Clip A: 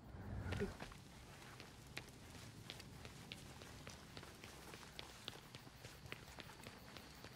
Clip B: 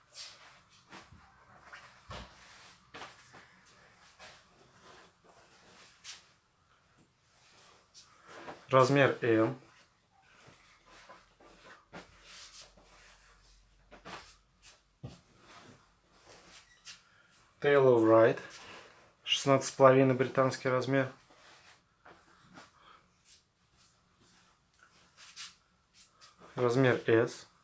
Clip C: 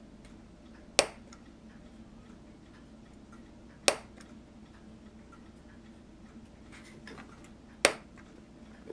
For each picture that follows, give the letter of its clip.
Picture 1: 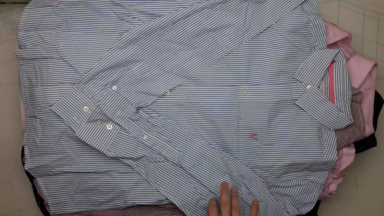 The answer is B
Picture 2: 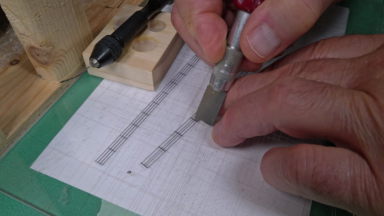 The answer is C